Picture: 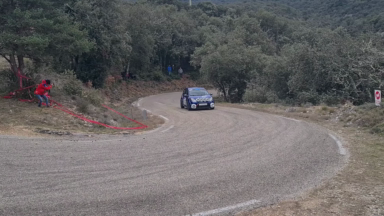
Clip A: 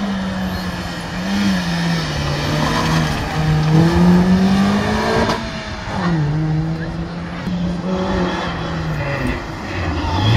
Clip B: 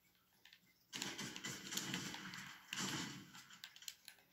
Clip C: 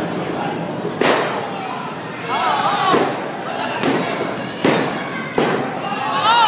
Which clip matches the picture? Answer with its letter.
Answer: A